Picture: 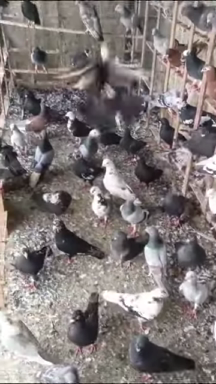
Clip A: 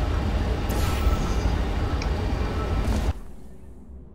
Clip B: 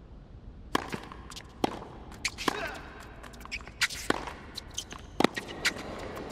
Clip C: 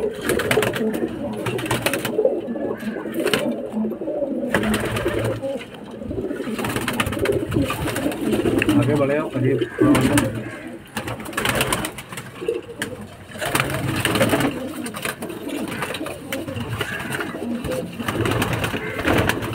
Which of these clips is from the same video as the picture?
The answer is C